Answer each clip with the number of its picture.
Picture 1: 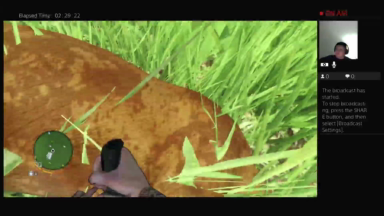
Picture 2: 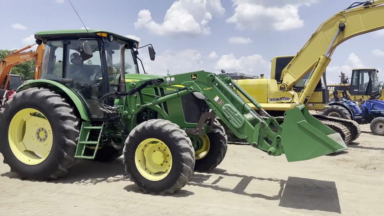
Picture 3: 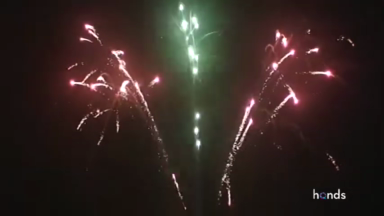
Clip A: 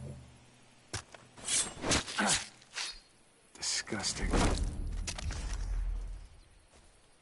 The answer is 1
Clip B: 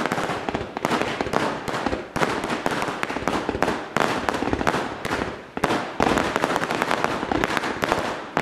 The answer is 3